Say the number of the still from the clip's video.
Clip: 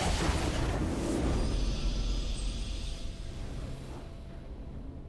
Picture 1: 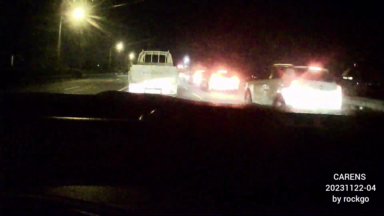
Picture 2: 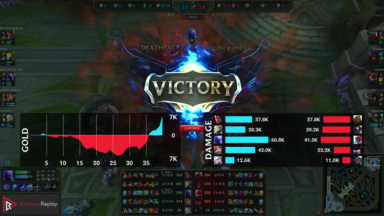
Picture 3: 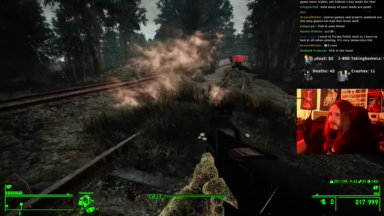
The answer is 2